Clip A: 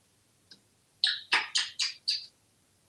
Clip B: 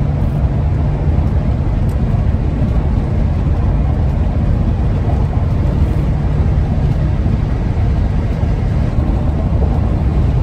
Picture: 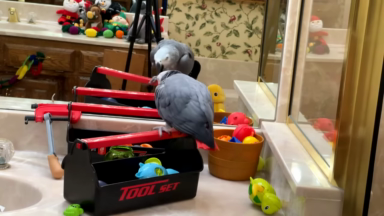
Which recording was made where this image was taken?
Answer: A